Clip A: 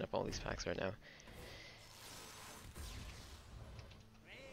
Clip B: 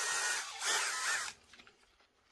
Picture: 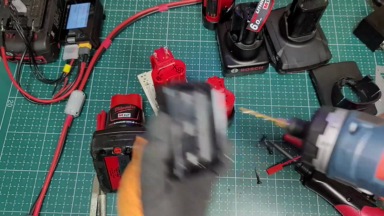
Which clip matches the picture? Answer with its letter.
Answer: B